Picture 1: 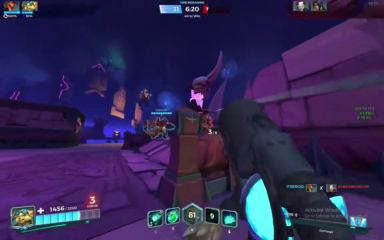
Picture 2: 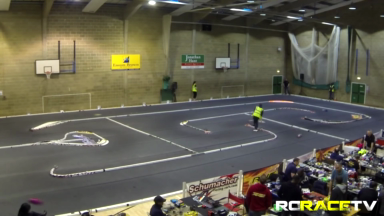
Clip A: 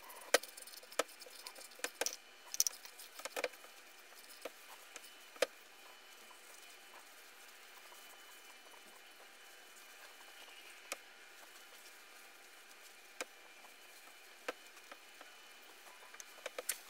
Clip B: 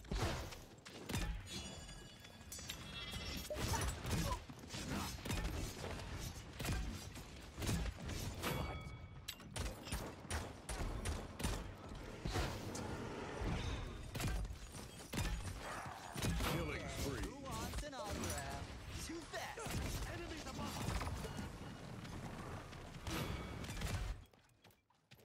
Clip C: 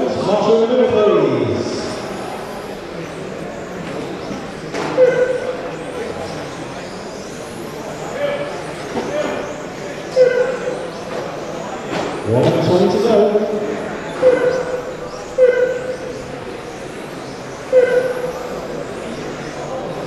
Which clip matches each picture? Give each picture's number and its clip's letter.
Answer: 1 B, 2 C